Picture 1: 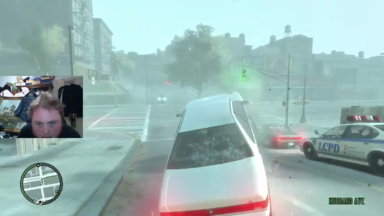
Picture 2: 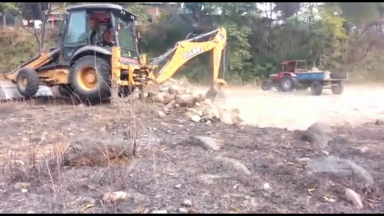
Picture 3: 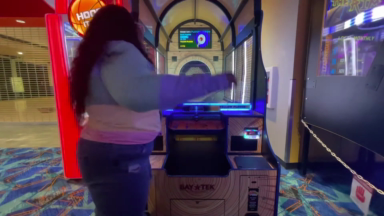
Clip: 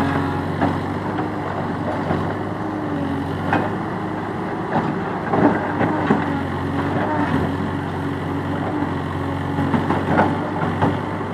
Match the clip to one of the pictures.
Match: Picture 2